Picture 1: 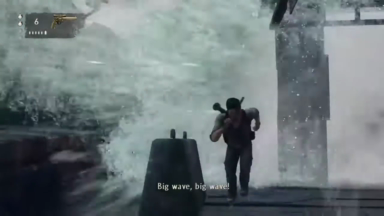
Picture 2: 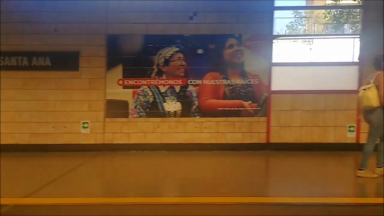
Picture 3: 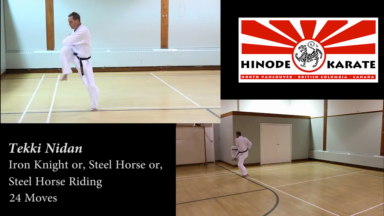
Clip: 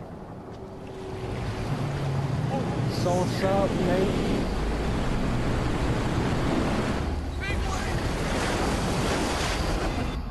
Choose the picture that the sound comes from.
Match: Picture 1